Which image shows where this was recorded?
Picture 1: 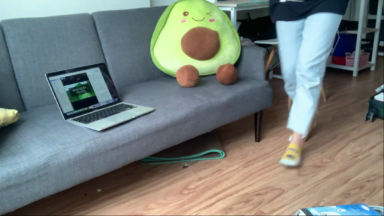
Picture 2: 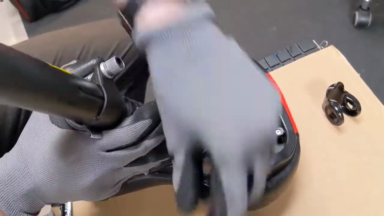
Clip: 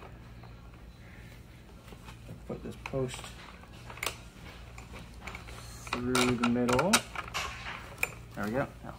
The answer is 2